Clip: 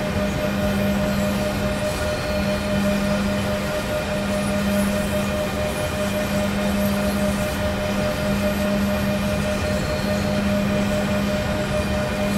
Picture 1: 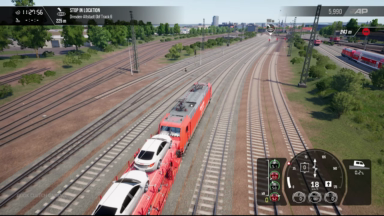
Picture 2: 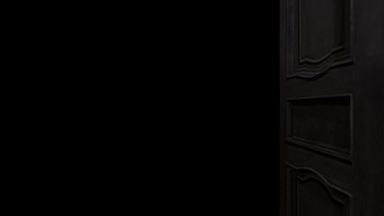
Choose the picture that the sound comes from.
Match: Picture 1